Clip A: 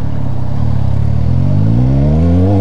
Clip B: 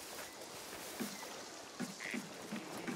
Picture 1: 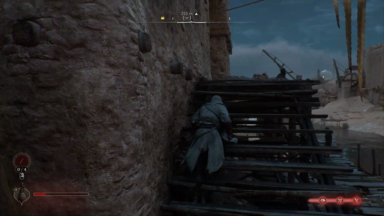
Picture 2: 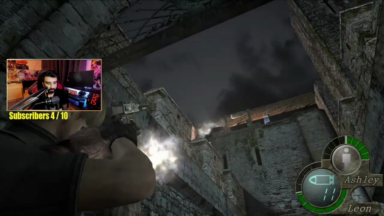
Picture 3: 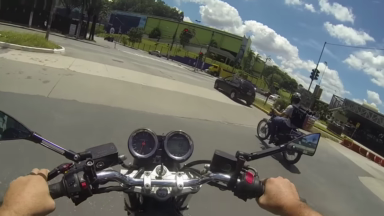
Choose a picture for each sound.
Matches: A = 3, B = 1